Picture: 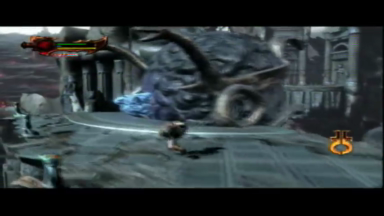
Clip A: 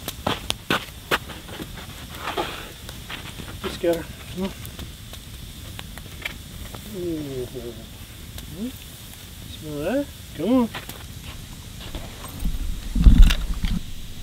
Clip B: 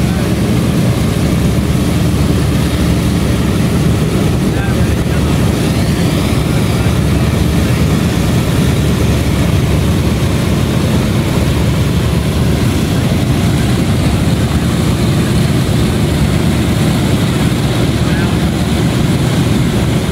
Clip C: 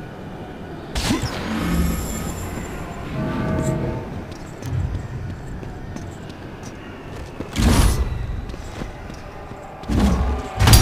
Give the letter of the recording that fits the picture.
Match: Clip C